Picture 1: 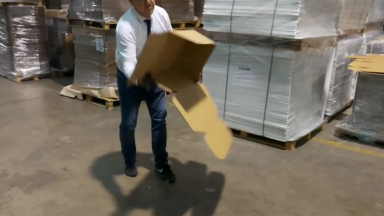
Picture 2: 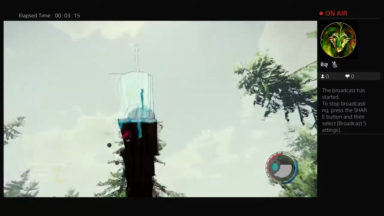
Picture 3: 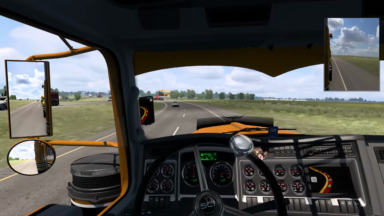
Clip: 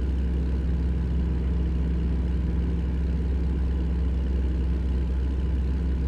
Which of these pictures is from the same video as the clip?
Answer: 3